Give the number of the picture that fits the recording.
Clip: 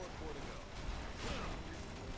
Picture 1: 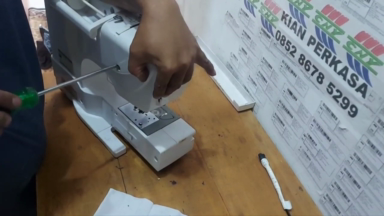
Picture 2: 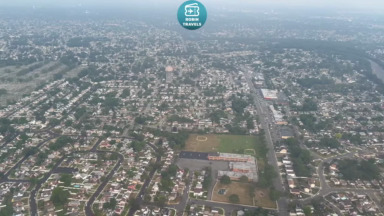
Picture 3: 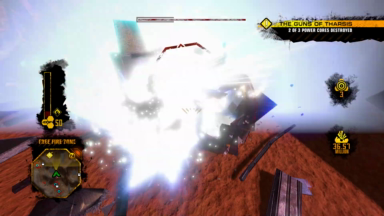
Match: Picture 3